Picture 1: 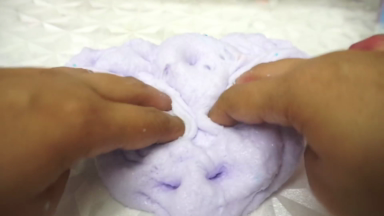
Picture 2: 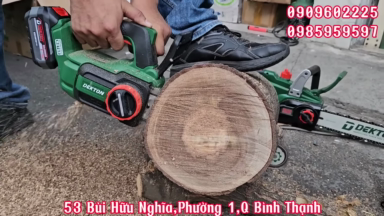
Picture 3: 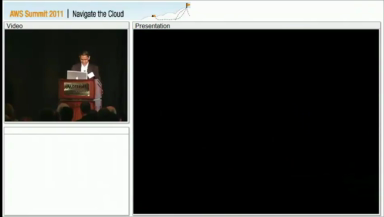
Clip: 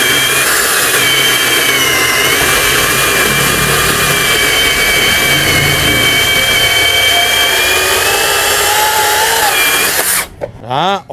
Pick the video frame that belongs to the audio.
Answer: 2